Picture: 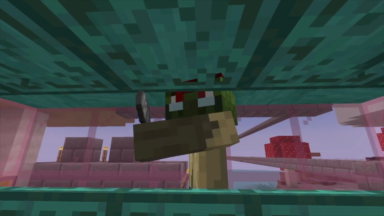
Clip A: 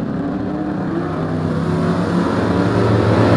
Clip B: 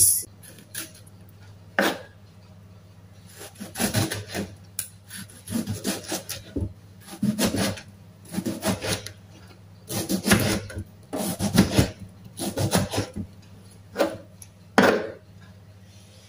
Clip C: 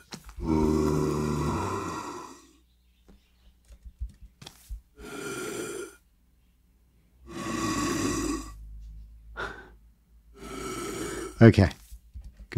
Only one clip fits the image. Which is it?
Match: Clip C